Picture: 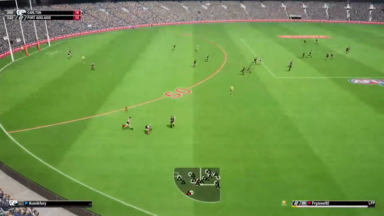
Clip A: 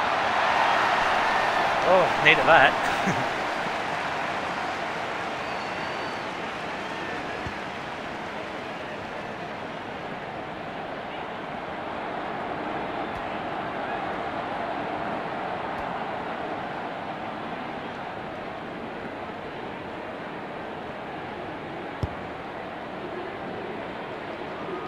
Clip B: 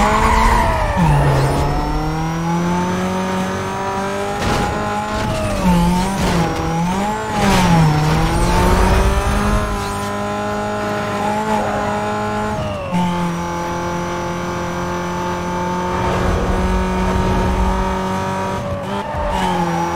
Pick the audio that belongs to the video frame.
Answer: A